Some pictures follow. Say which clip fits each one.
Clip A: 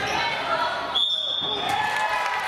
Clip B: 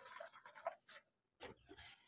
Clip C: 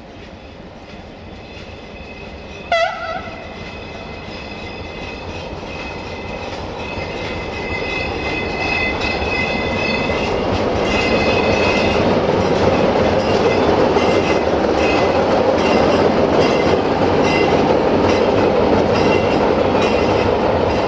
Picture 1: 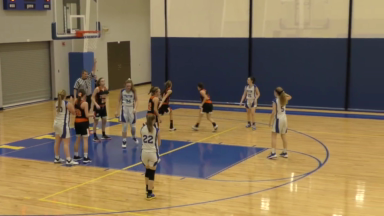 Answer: A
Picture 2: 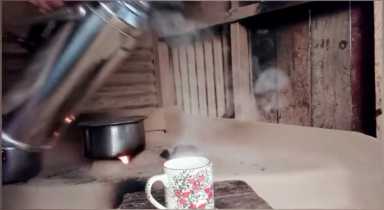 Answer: B